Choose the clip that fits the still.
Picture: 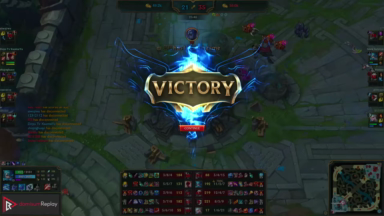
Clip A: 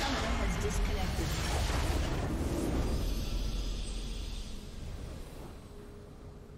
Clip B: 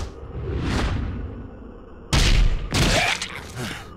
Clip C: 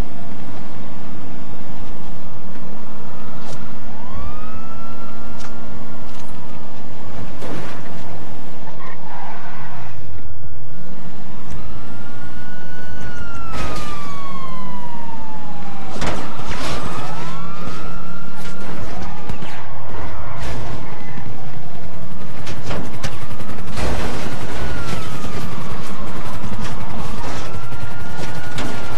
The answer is A